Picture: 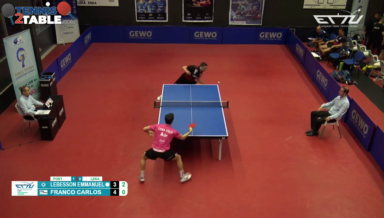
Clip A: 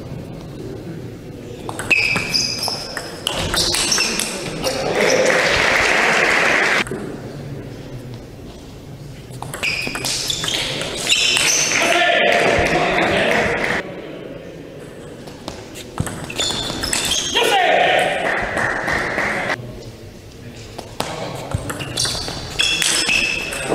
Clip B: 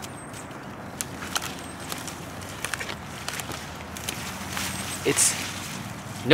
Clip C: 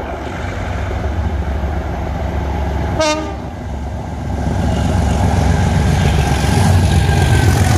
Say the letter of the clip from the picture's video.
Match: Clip A